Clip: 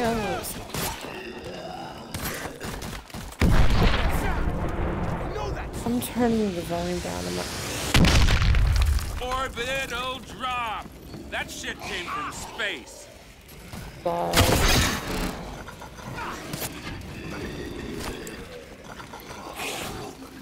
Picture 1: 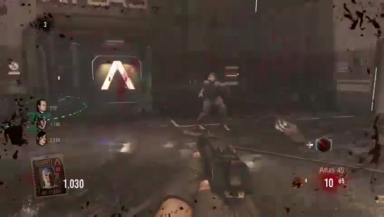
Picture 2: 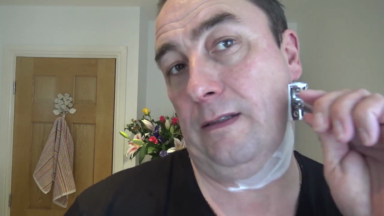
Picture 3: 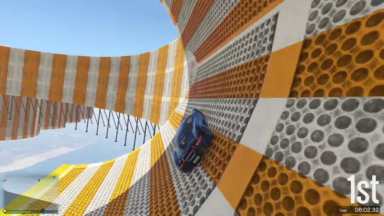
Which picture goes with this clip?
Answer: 1